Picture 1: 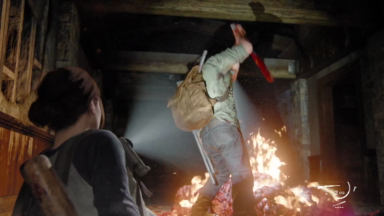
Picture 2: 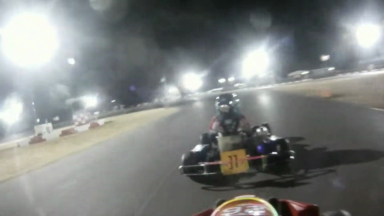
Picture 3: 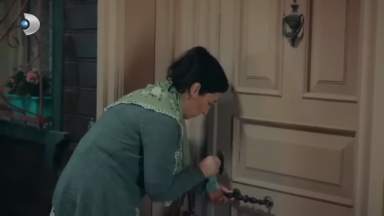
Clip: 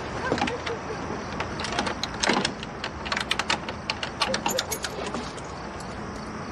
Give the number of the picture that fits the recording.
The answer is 3